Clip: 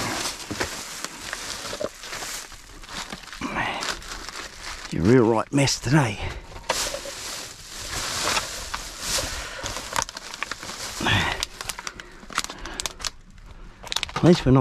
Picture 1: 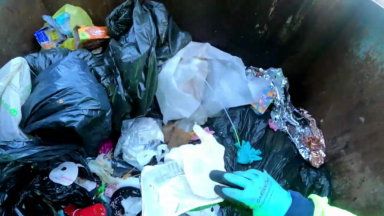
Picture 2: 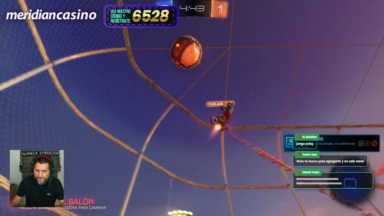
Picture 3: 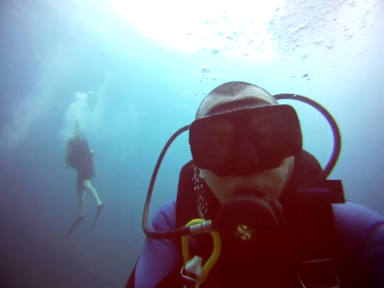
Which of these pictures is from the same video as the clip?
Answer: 1